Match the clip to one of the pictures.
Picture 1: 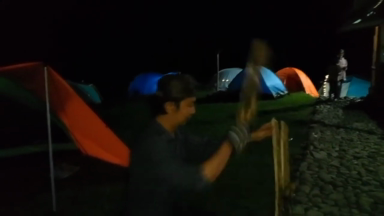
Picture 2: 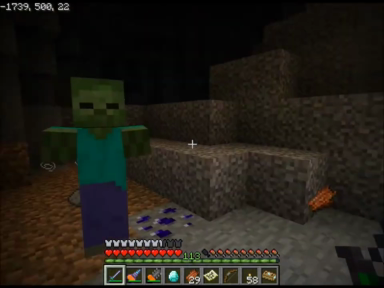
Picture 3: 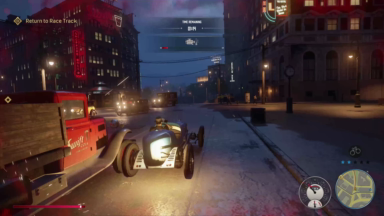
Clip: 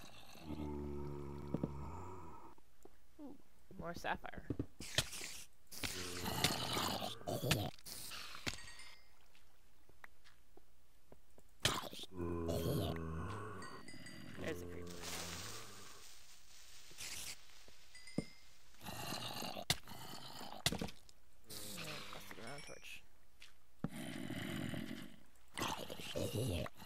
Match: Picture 2